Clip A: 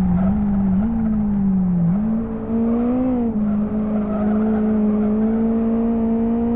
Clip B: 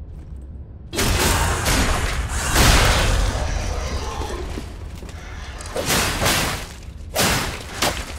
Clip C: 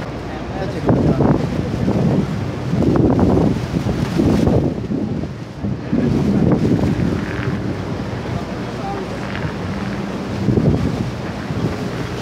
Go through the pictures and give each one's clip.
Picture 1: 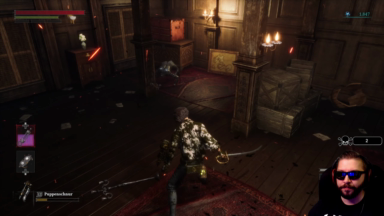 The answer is B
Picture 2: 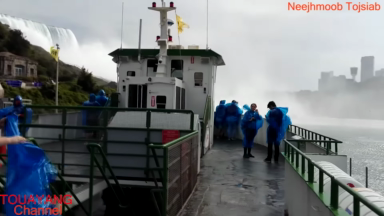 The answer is C